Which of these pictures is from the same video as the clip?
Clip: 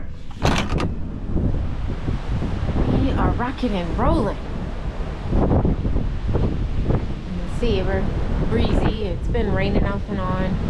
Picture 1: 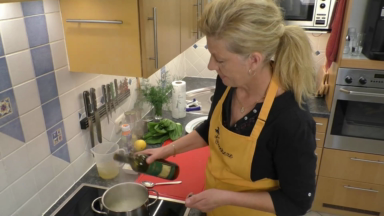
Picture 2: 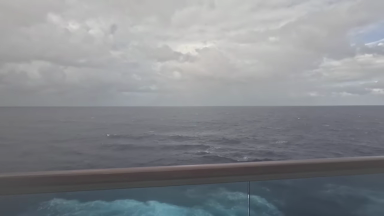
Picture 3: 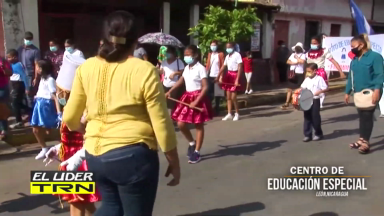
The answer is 2